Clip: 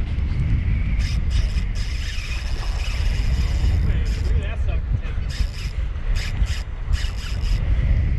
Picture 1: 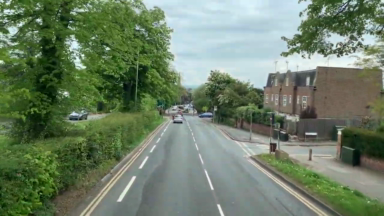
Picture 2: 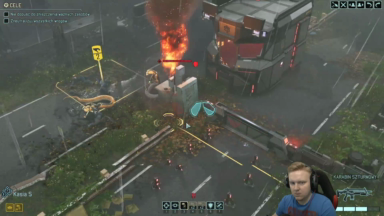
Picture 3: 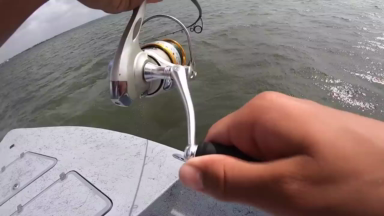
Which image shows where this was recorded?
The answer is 3